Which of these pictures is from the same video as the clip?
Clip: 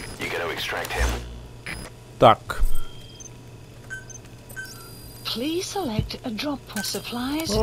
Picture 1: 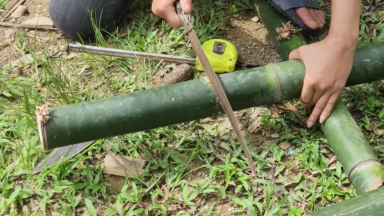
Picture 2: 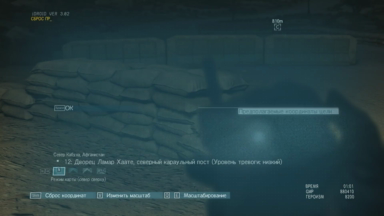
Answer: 2